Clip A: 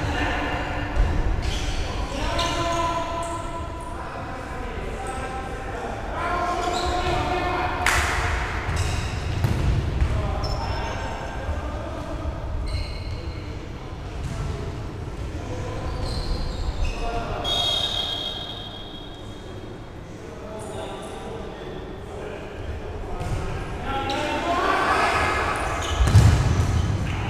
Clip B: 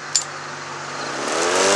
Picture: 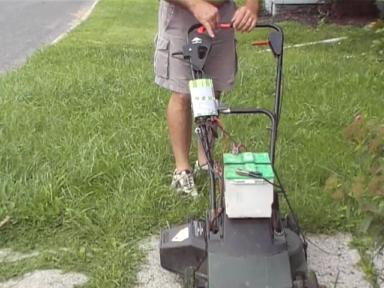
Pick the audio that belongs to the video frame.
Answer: B